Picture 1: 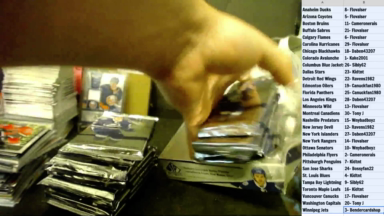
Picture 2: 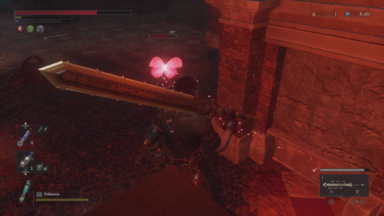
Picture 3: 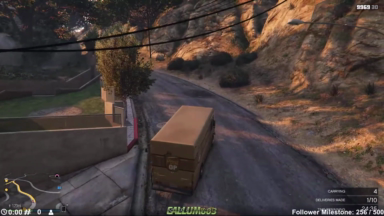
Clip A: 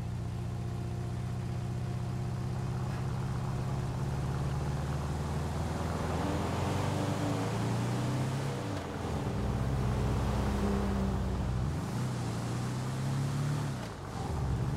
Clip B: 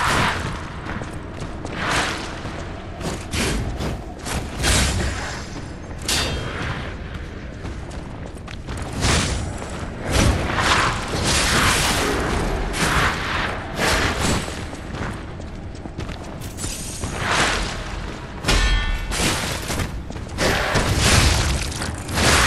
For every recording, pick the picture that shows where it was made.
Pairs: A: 3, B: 2